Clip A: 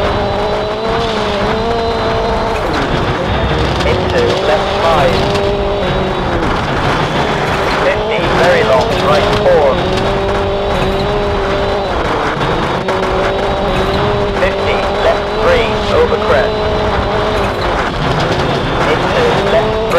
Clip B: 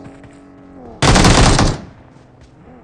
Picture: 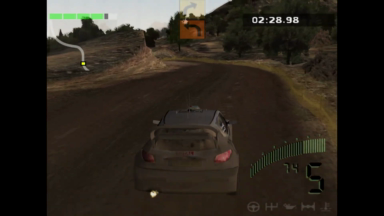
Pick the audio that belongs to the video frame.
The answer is A